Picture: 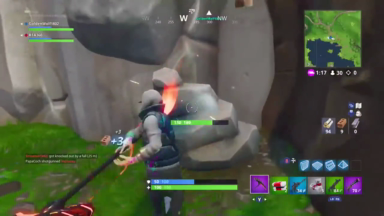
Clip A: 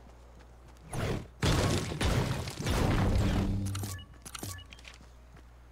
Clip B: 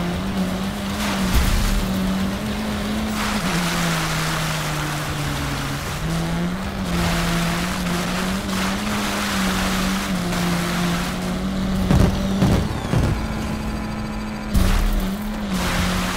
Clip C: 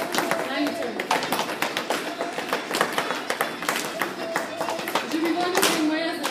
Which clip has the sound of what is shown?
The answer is A